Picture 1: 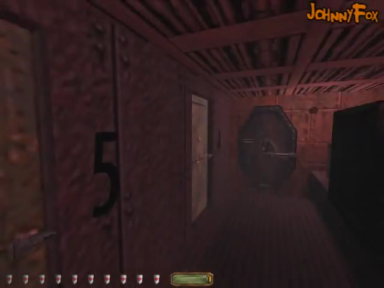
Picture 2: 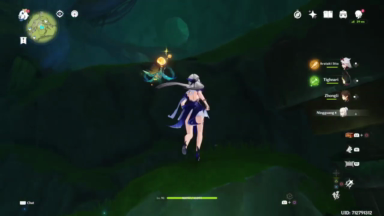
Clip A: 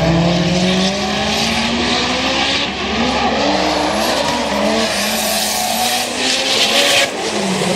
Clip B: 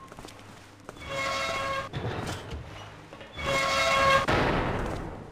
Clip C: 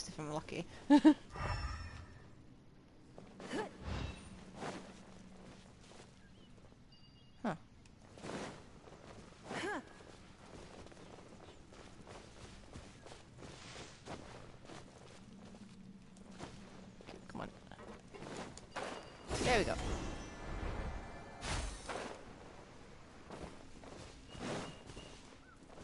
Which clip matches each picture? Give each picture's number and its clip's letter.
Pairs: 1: B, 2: C